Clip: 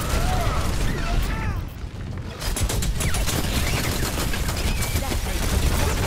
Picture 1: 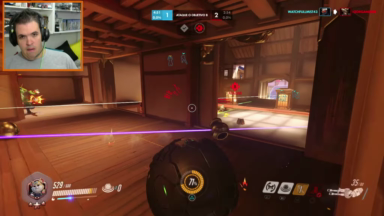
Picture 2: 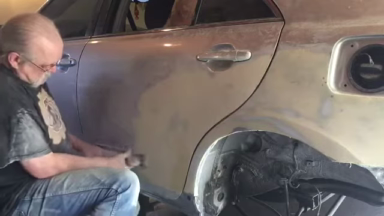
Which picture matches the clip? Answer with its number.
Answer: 1